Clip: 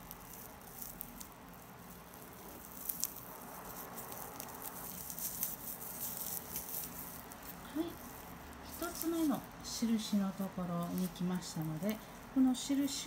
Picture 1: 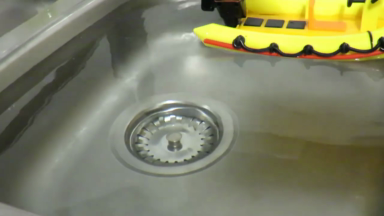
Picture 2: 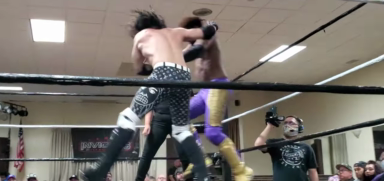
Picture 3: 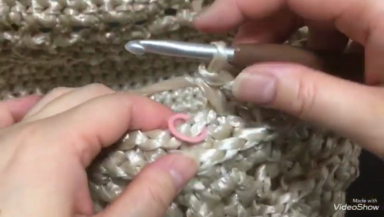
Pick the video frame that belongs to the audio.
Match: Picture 3